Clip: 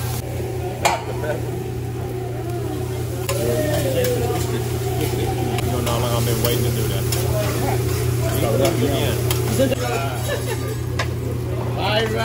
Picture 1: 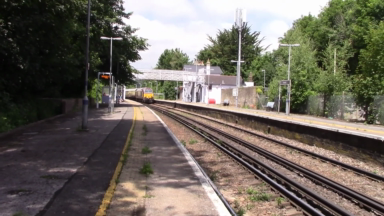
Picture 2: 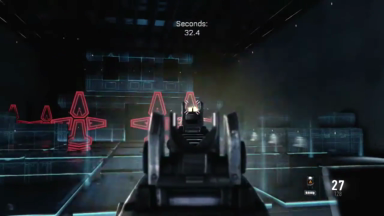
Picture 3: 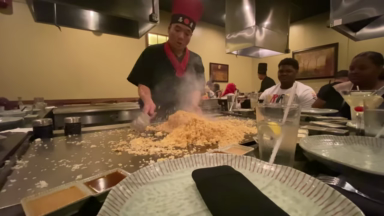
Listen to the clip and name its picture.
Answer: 3